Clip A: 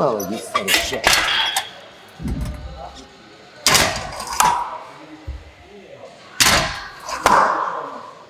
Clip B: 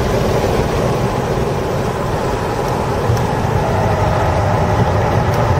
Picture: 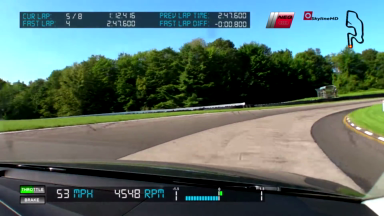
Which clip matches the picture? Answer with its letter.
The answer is B